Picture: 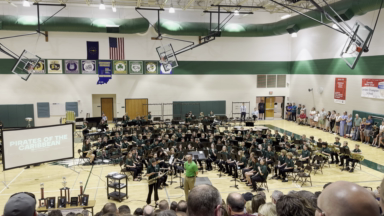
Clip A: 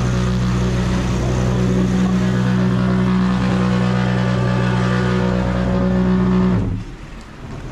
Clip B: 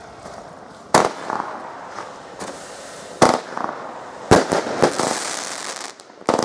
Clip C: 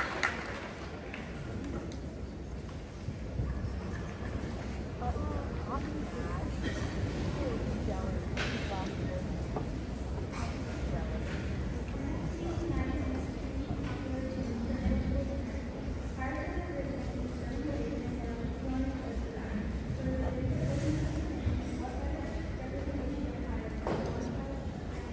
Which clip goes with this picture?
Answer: C